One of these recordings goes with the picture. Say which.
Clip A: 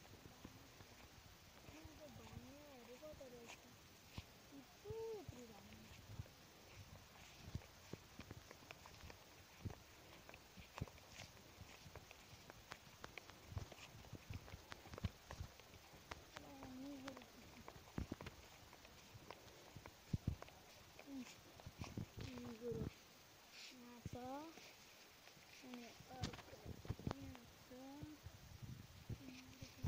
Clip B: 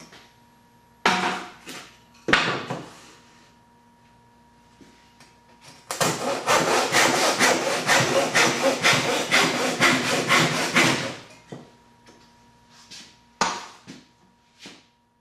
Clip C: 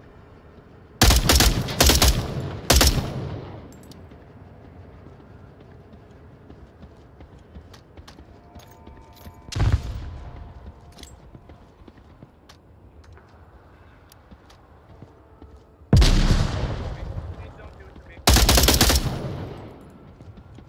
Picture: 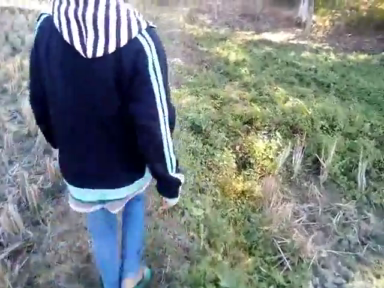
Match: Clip A